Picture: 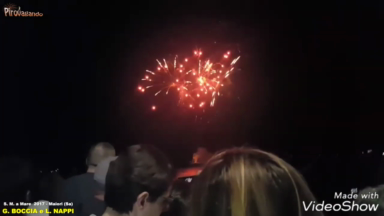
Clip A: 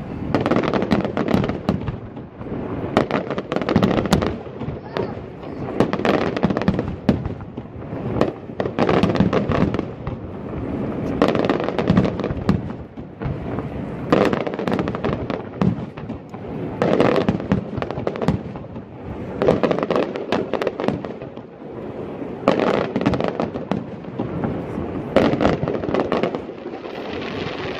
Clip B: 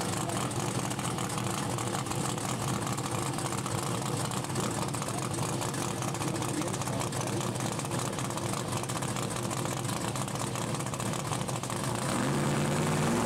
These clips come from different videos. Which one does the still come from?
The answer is A